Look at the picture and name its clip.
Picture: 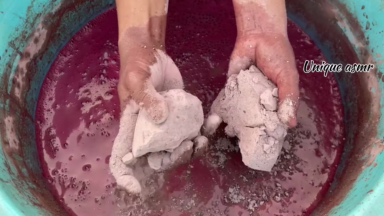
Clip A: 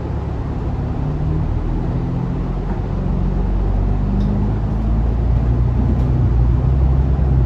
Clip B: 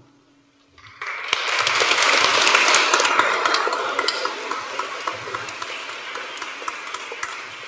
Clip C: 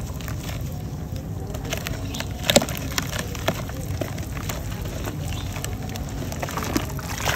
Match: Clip C